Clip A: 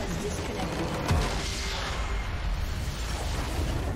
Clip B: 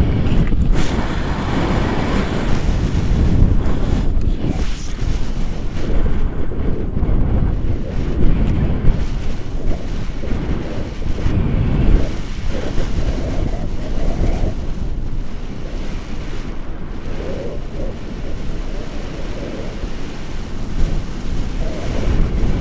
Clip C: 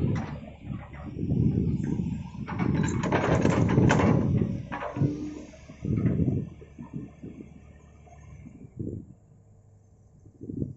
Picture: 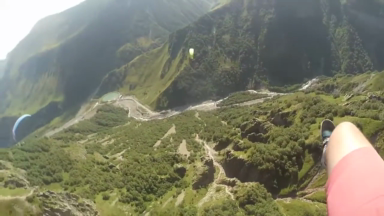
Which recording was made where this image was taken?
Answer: B